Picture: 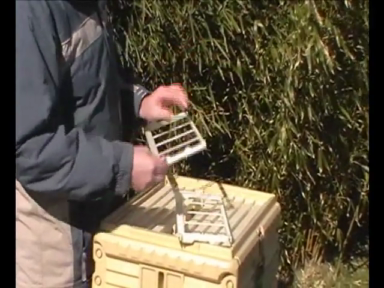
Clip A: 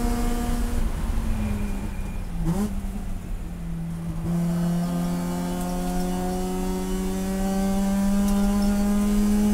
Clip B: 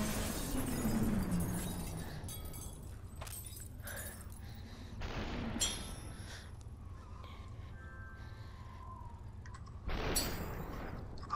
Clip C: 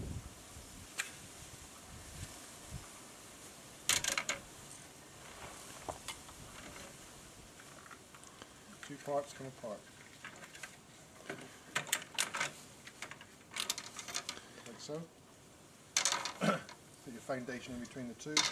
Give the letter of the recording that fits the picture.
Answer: C